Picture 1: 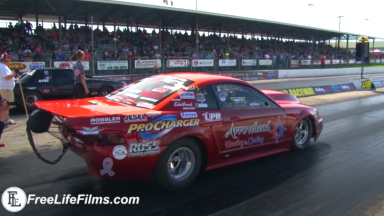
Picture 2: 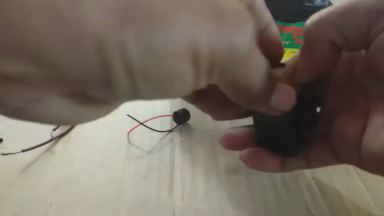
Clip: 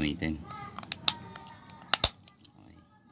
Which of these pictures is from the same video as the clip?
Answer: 2